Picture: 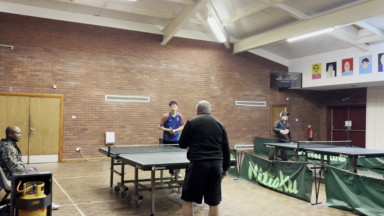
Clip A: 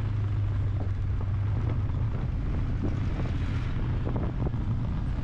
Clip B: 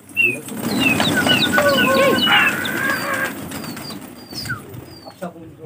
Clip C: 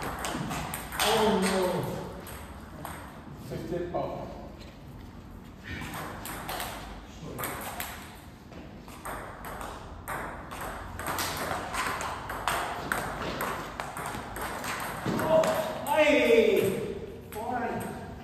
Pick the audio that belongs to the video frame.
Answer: C